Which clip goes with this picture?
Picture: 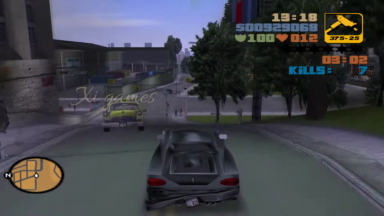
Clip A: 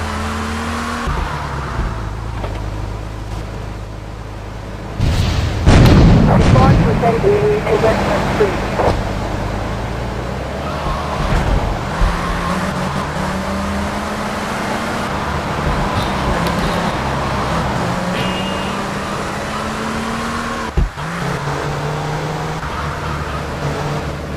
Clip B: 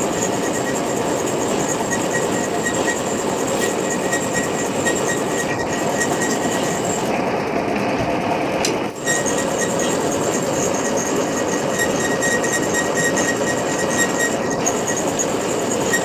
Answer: A